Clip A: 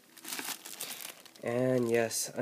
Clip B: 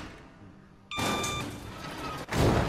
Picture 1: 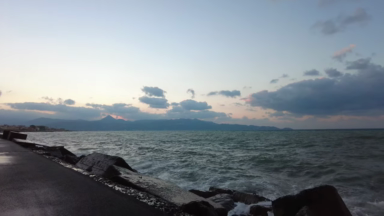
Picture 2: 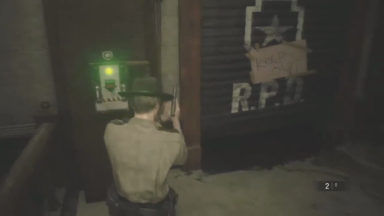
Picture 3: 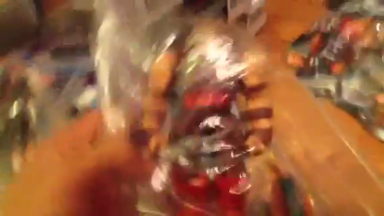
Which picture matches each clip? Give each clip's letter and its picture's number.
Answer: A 3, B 2